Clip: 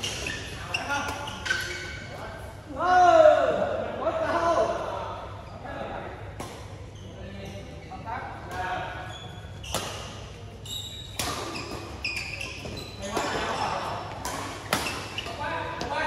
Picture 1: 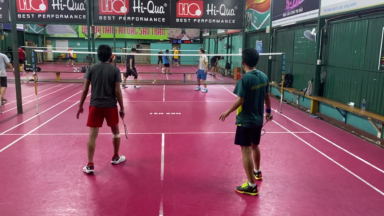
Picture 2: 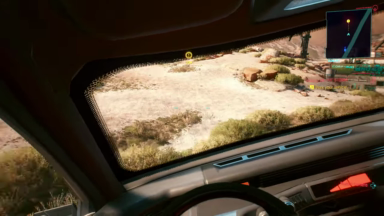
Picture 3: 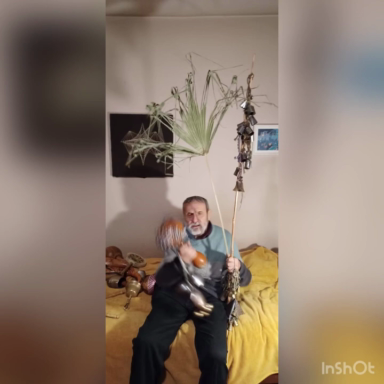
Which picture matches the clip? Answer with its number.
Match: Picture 1